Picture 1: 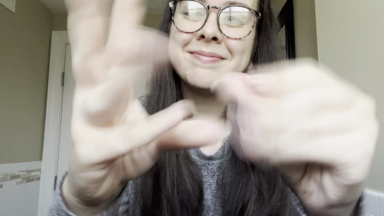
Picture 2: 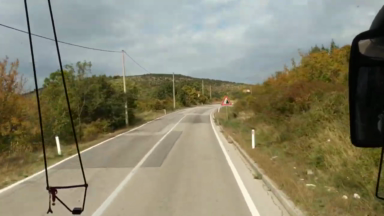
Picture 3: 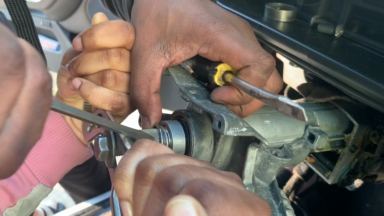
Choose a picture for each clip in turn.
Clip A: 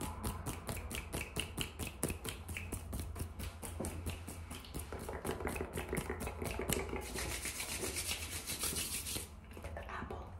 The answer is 1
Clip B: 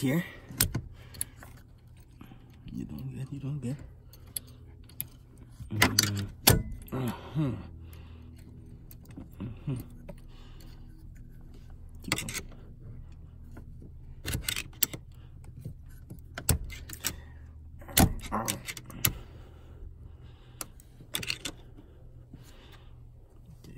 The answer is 3